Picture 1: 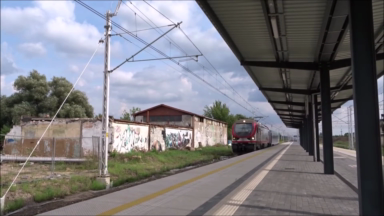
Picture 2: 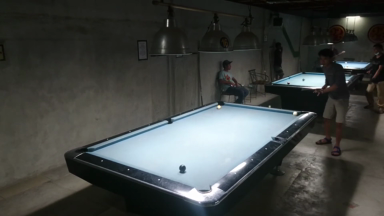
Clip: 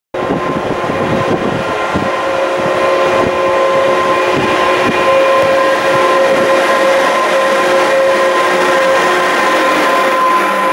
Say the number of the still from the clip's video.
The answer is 1